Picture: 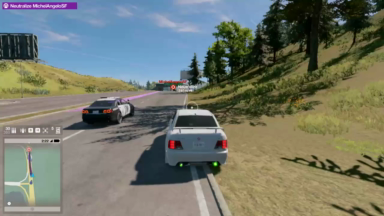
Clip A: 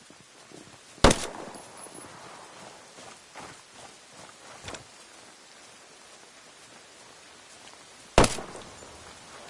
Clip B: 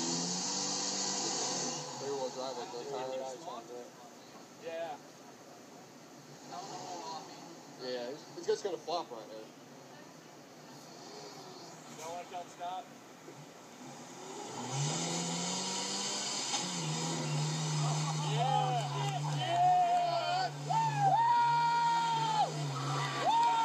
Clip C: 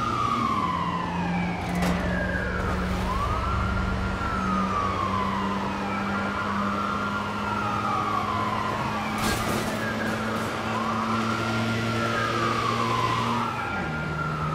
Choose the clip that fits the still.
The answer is C